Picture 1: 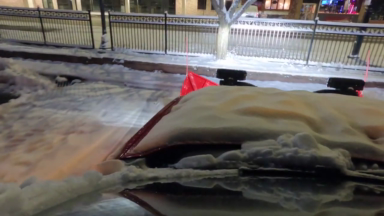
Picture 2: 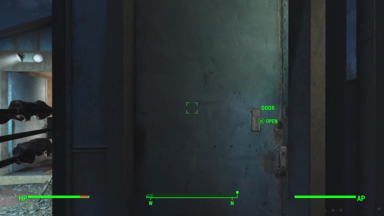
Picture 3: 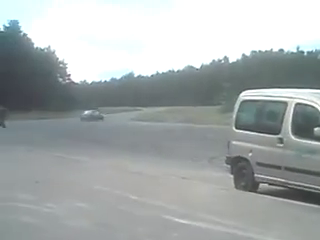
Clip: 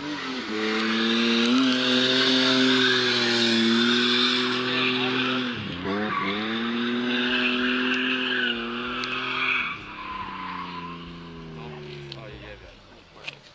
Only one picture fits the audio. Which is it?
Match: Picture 3